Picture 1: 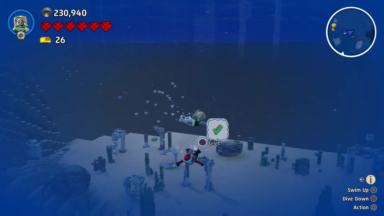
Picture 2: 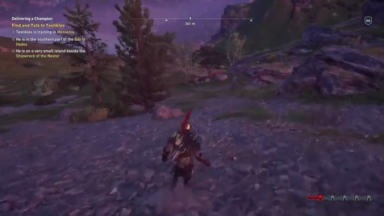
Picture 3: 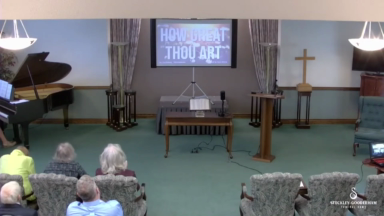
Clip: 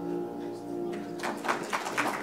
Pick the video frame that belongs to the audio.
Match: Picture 3